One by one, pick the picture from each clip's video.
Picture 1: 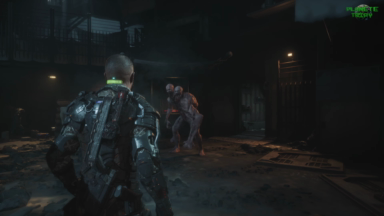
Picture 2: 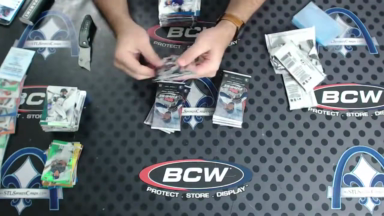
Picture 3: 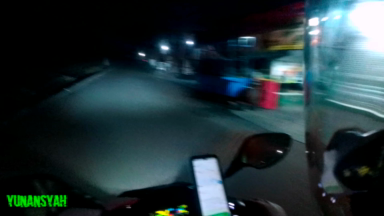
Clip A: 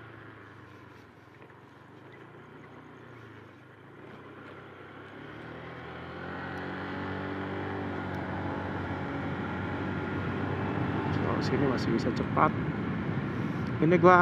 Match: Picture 3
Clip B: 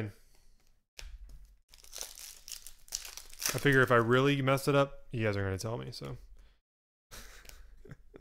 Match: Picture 2